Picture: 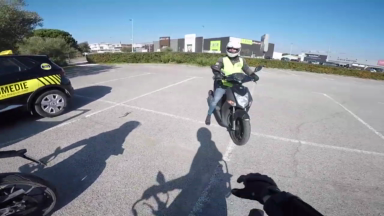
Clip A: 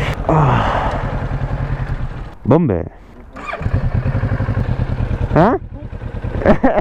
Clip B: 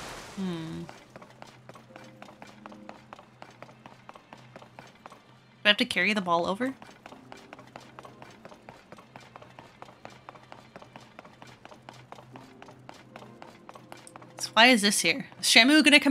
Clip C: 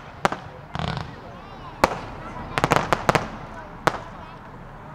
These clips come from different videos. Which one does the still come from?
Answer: A